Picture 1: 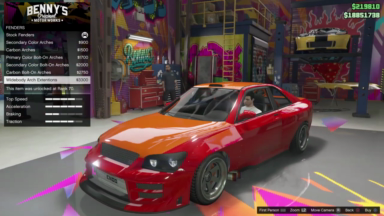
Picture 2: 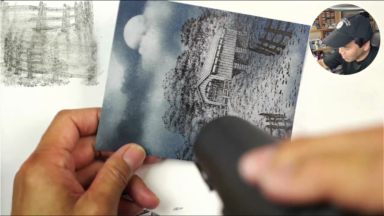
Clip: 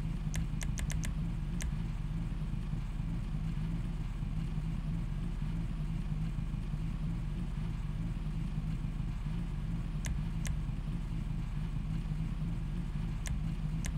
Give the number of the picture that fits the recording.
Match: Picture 1